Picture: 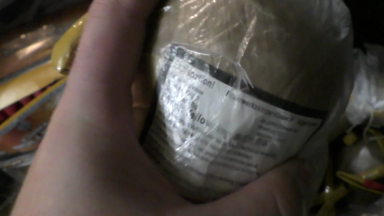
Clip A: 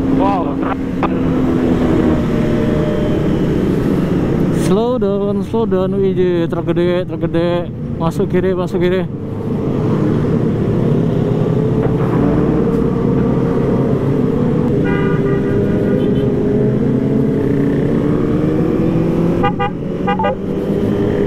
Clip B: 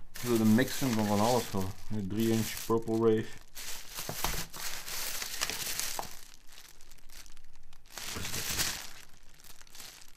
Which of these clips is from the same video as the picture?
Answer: B